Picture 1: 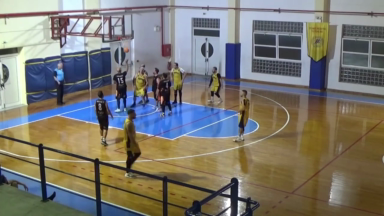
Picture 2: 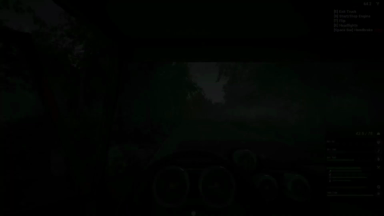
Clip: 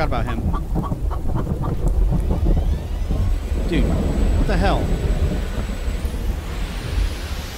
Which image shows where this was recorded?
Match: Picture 2